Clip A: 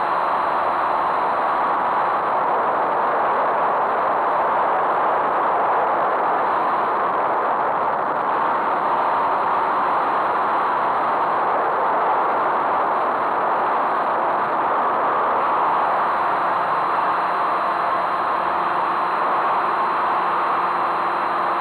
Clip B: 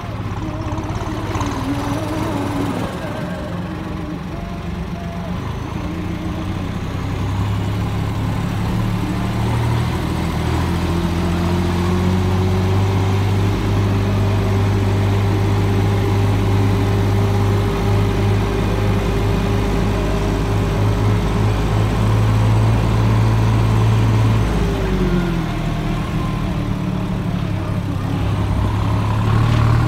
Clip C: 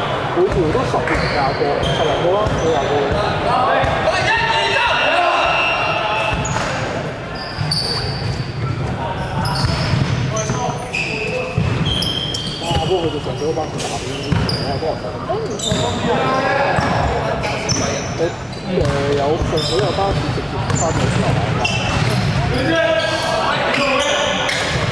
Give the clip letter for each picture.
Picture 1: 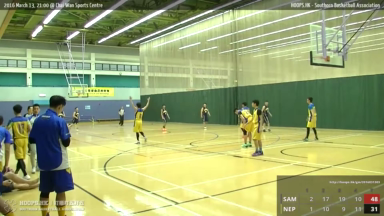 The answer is C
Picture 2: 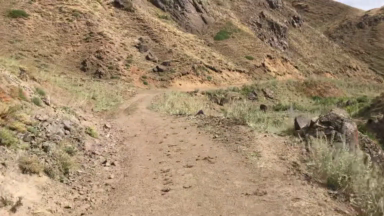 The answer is B